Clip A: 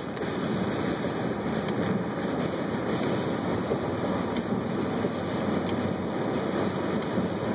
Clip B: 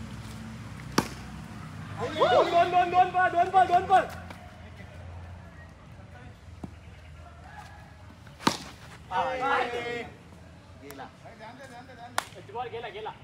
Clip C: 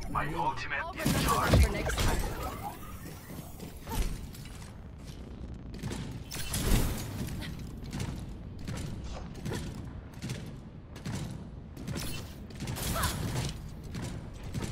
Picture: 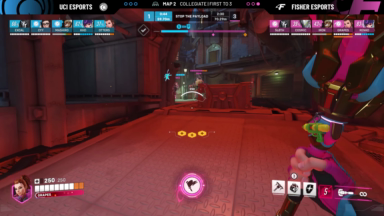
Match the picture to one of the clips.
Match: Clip C